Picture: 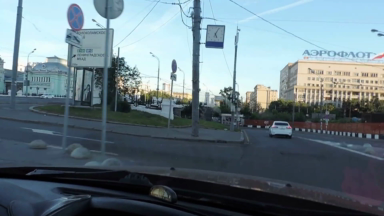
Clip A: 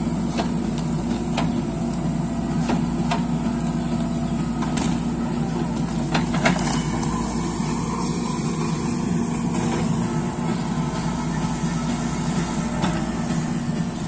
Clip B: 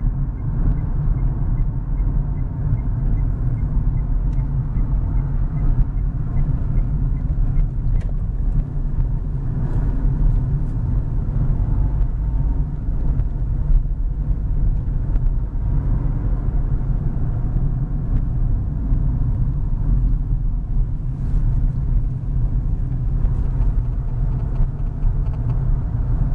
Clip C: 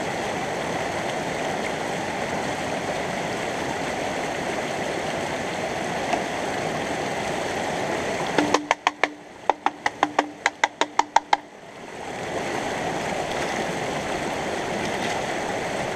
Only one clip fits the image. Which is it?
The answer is B